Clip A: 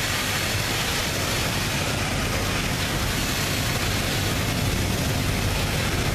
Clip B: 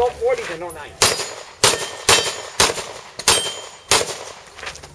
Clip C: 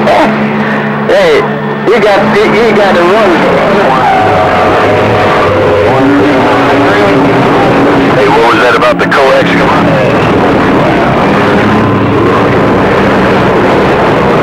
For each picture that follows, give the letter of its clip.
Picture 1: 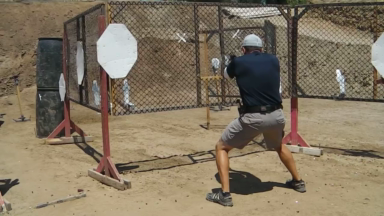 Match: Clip B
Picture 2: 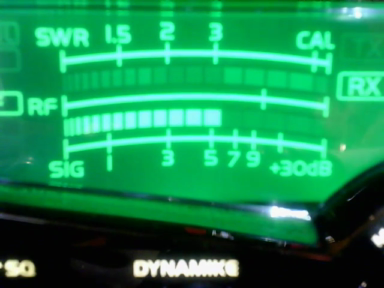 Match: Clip C